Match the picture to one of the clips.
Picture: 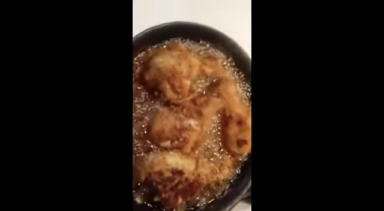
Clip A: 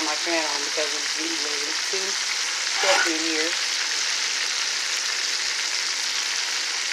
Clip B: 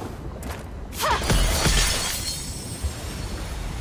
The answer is A